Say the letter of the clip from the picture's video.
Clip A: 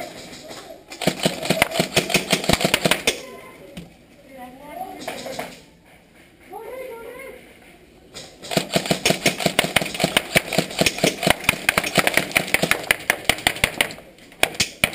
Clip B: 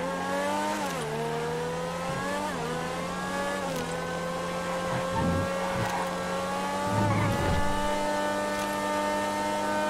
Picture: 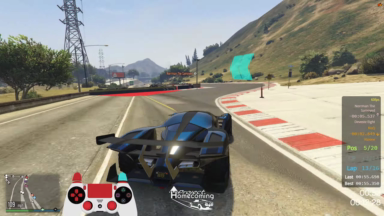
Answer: B